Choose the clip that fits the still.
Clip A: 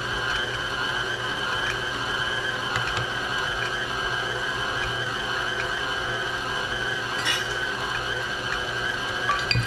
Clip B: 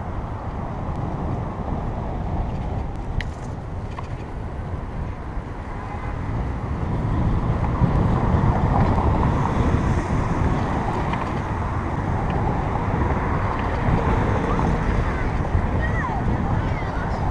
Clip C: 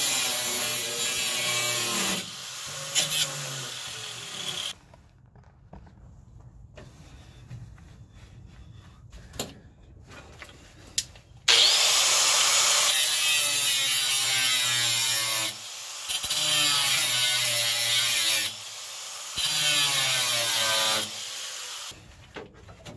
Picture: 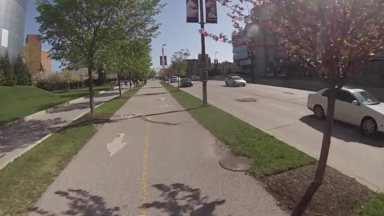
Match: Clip B